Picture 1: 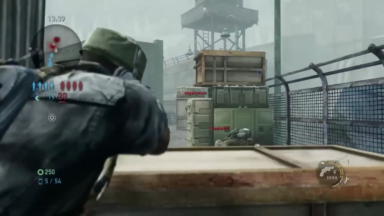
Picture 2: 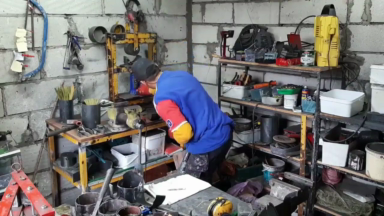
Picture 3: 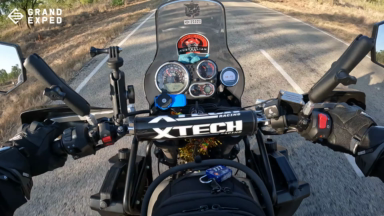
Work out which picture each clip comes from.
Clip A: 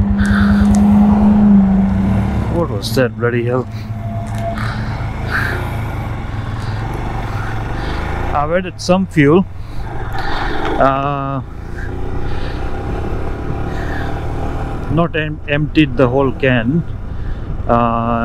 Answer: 3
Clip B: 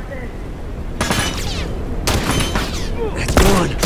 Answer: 1